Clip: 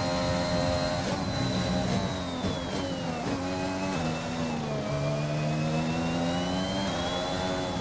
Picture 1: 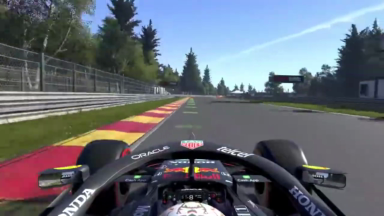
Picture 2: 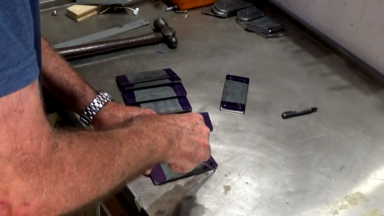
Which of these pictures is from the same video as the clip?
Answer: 1